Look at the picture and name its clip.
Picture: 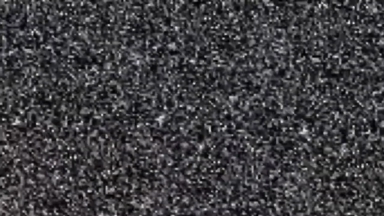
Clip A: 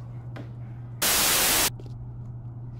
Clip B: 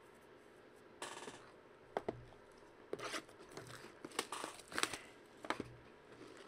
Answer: A